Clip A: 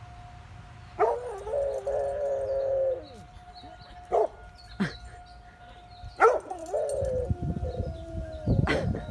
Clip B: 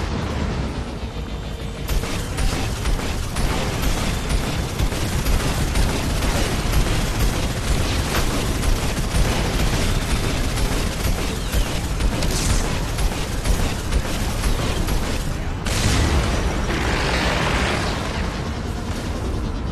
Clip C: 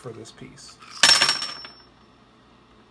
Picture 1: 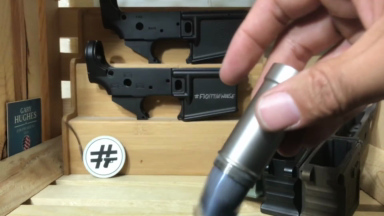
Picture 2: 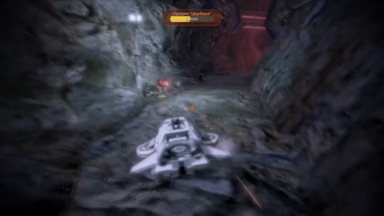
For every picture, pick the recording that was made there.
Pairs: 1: C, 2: B